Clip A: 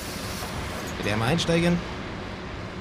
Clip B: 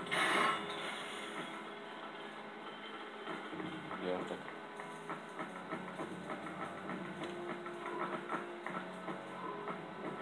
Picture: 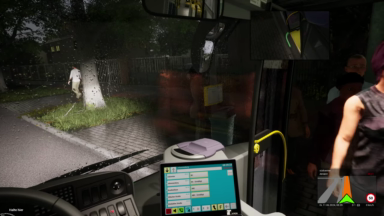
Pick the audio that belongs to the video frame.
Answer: A